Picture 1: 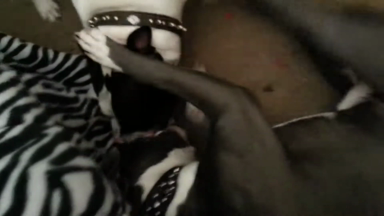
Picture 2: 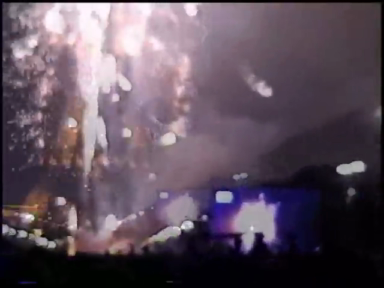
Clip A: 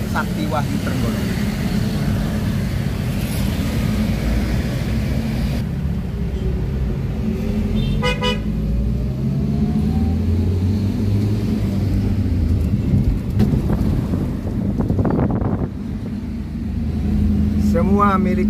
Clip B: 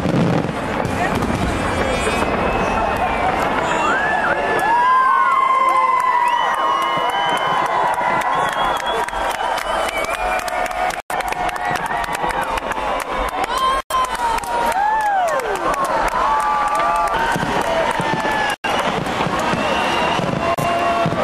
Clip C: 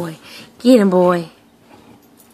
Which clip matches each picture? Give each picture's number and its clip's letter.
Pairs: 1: C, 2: B